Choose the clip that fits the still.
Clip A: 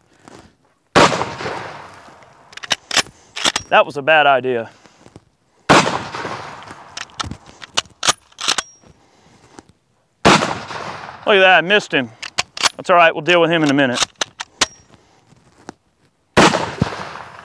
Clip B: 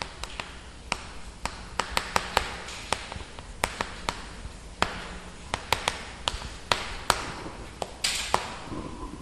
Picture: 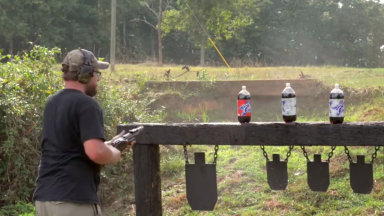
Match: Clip A